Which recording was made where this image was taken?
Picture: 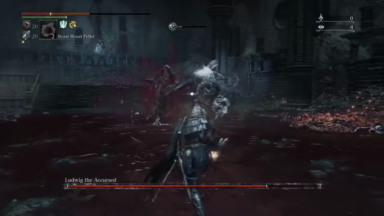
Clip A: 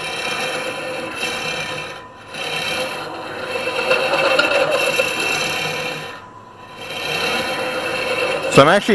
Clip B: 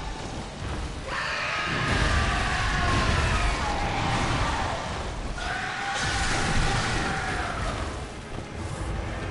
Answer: B